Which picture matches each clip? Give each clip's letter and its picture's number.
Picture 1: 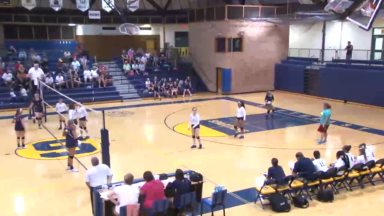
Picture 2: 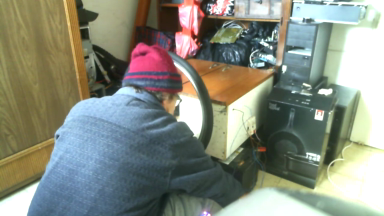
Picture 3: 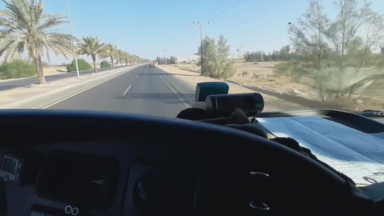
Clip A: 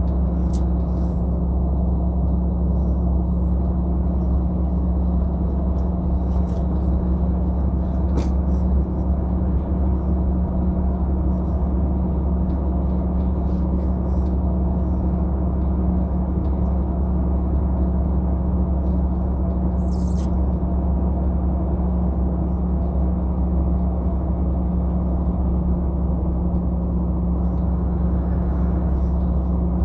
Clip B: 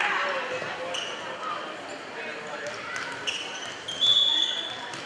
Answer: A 3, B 1